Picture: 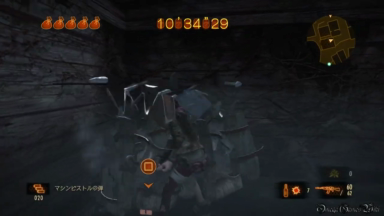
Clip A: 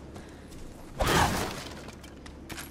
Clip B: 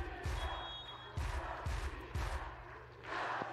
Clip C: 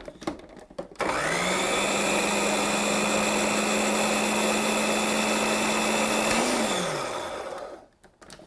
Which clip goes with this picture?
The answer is A